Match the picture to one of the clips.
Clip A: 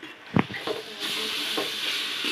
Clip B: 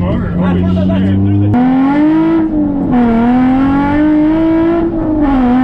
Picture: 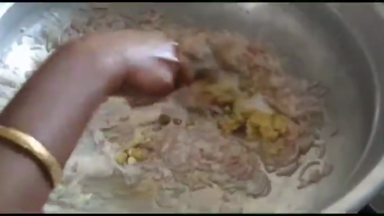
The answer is A